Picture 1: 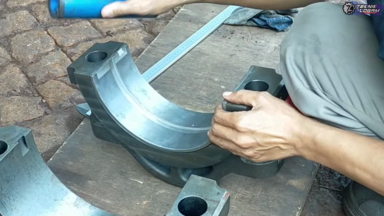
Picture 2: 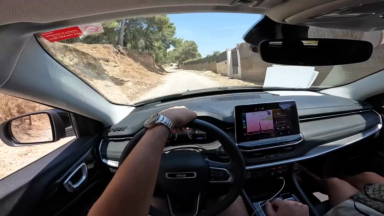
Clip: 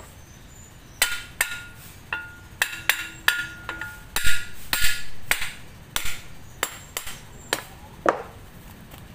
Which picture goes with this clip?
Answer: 1